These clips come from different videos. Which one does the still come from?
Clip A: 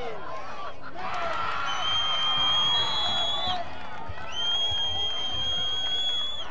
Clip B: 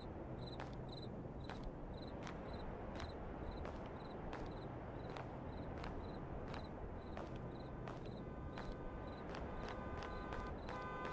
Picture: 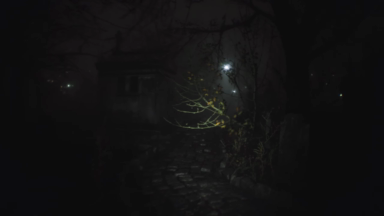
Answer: B